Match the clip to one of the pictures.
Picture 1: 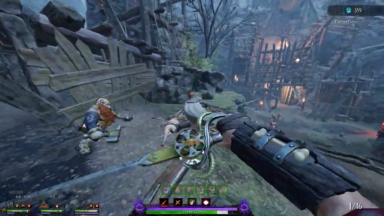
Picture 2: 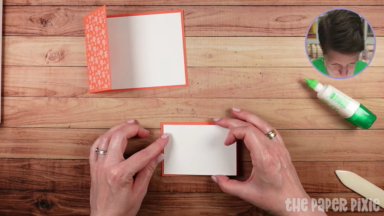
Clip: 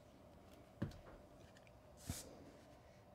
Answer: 2